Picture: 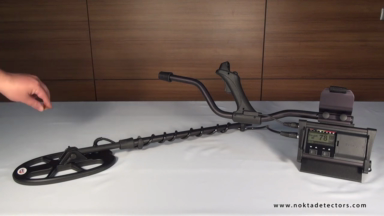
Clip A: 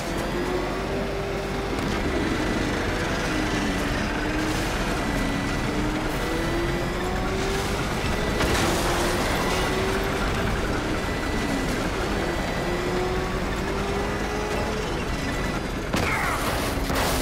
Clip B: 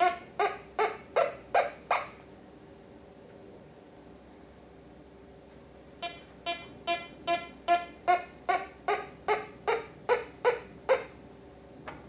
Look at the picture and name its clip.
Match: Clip B